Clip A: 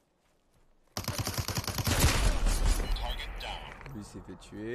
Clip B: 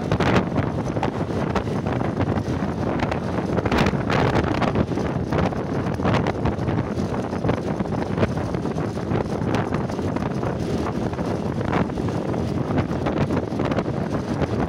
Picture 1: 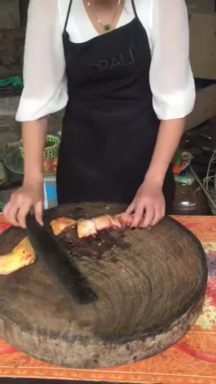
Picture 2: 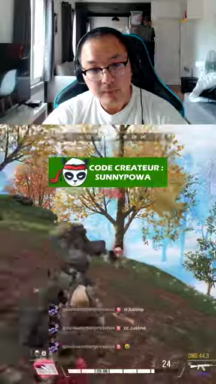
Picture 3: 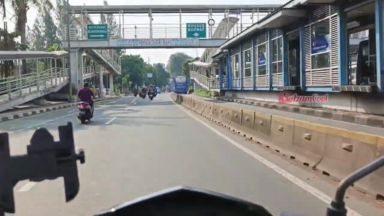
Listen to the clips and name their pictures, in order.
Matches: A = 2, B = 3